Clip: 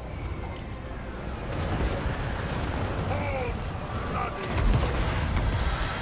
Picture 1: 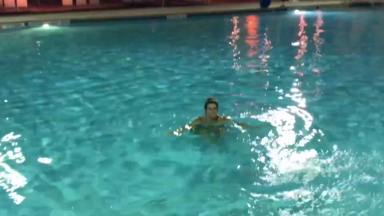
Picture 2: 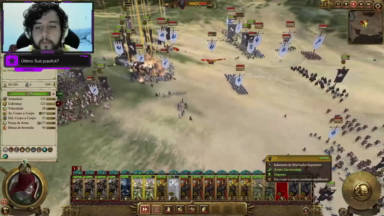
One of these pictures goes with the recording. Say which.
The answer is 2